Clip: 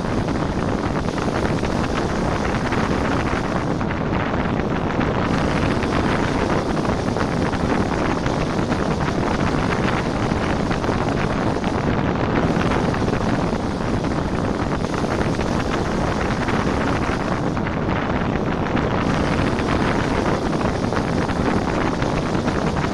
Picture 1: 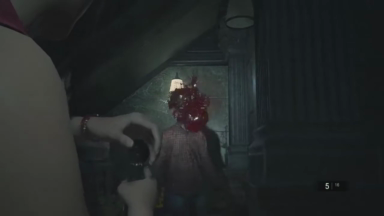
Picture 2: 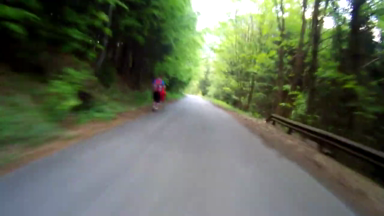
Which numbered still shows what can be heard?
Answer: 2